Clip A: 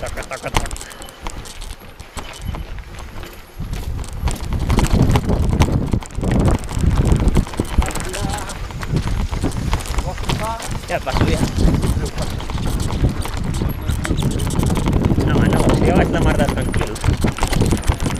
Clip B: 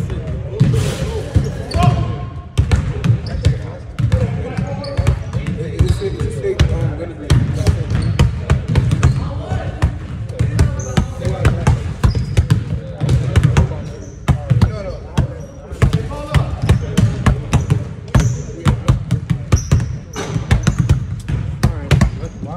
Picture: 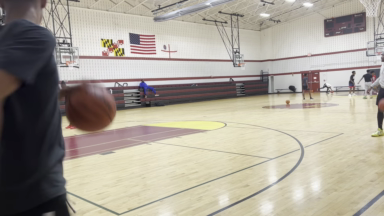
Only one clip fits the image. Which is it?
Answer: B